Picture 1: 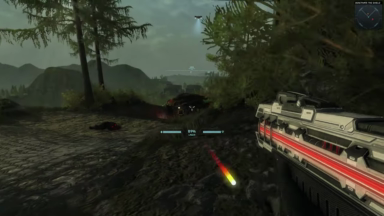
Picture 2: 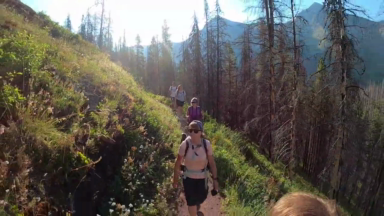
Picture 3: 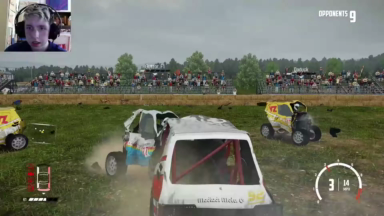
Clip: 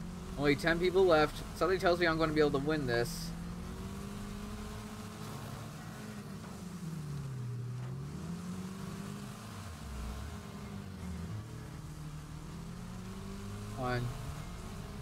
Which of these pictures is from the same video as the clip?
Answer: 3